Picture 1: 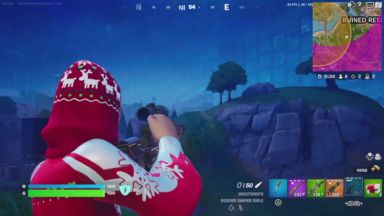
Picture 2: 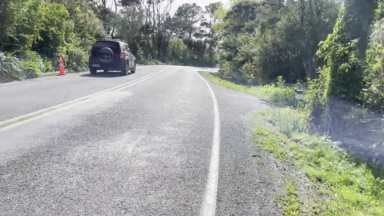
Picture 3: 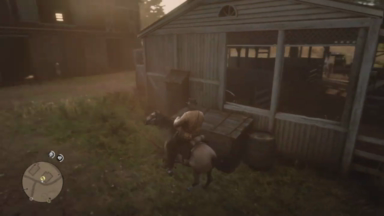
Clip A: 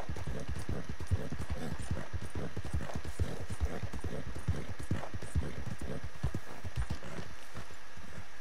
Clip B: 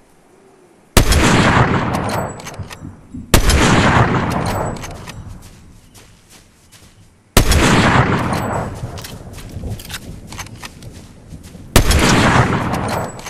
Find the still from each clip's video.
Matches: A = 3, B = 1